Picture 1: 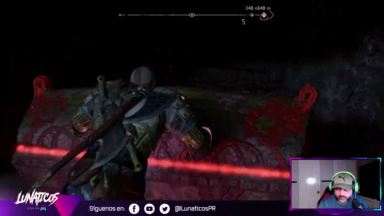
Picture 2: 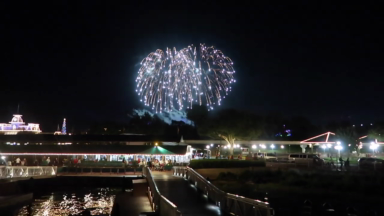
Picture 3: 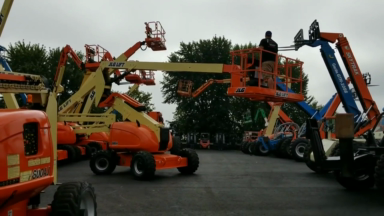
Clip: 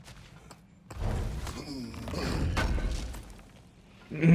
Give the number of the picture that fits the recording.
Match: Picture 1